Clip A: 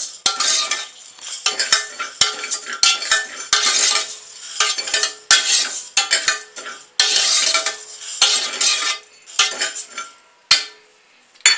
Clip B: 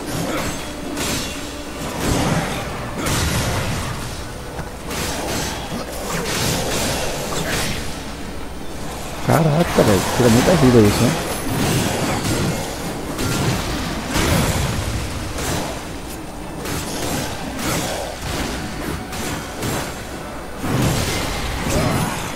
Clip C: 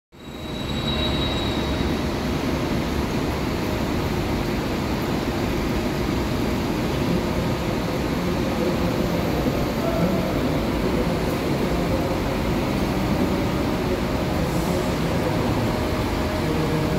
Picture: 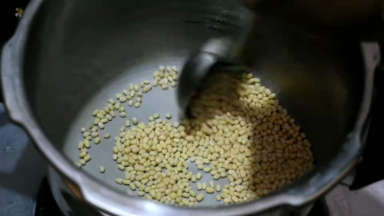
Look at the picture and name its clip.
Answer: A